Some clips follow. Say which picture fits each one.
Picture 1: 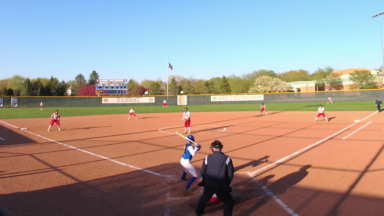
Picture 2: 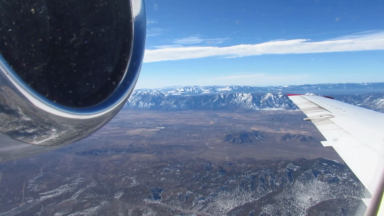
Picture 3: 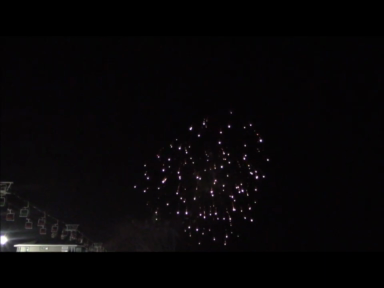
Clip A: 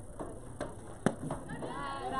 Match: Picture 1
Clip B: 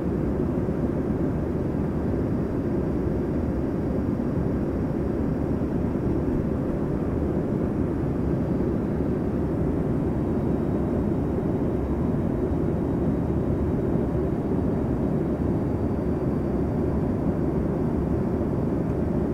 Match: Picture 2